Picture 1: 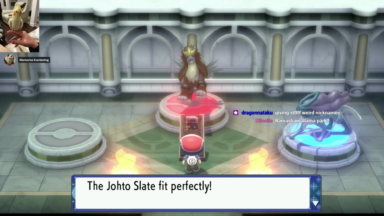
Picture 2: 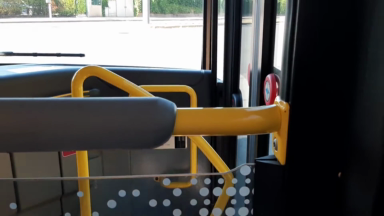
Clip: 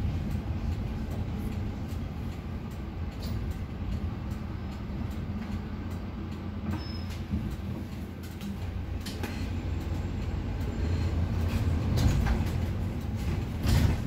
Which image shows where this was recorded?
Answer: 2